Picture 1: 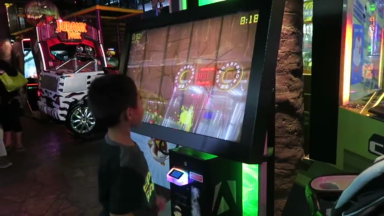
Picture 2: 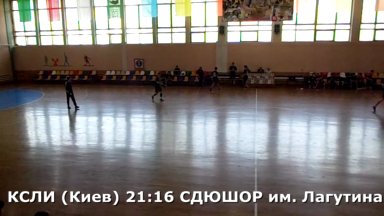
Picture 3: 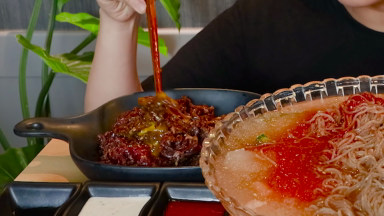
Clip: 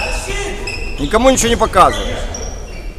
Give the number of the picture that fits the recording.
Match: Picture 2